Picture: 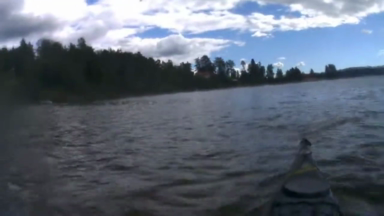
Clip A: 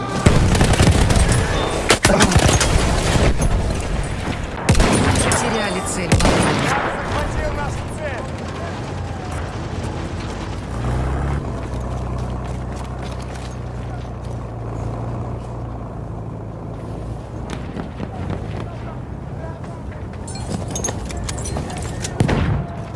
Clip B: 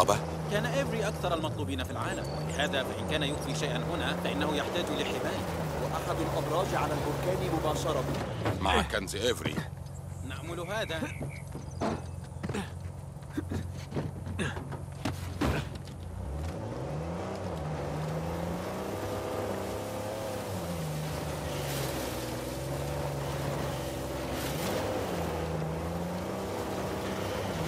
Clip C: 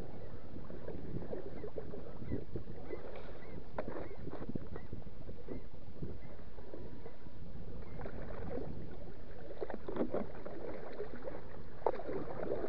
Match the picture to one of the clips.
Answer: C